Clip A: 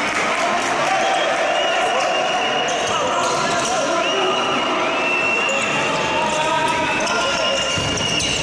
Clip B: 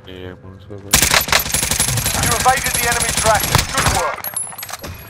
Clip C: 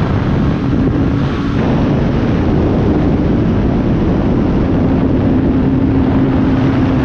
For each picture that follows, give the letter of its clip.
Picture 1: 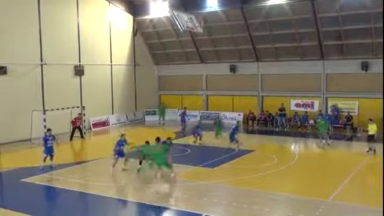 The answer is A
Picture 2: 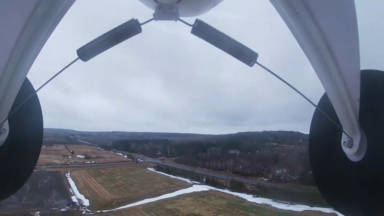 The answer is C